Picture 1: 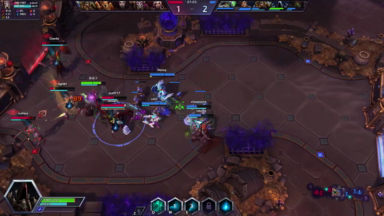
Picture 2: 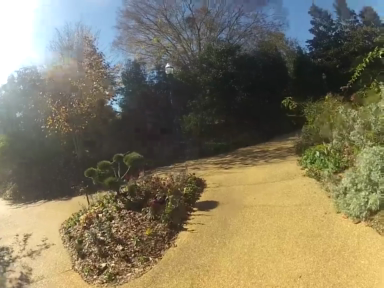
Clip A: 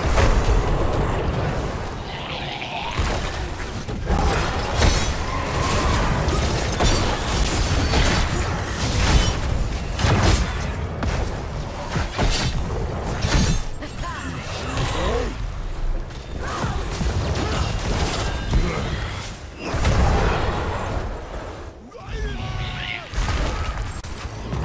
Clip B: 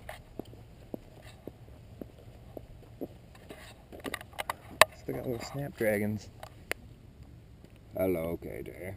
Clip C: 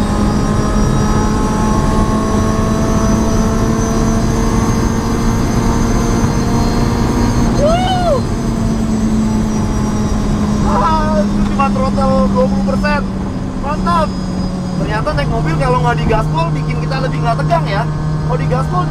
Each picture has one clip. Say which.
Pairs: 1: A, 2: B